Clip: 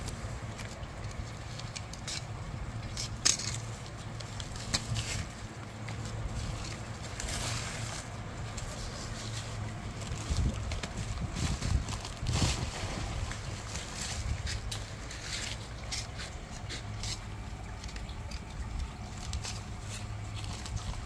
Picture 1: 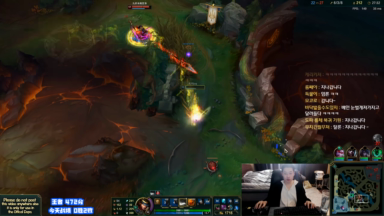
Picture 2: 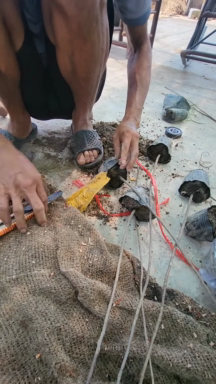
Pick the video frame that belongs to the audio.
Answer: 2